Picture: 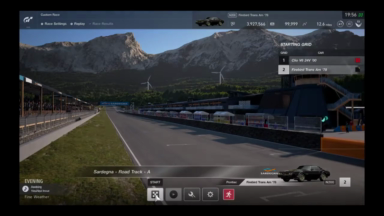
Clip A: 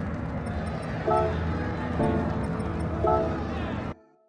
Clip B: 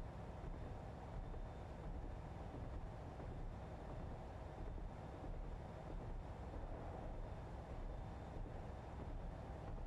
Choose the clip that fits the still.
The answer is A